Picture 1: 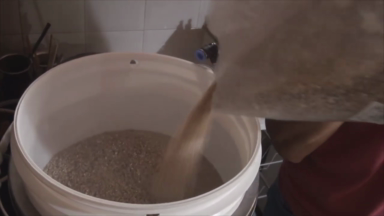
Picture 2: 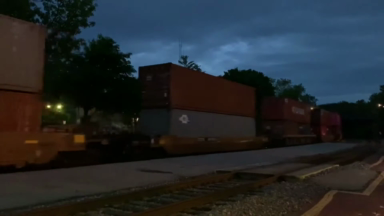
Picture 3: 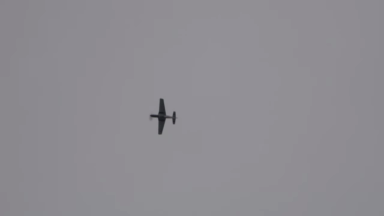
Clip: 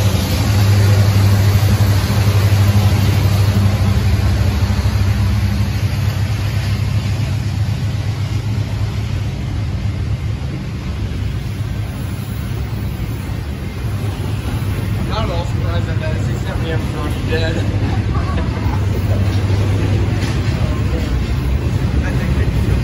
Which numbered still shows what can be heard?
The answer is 2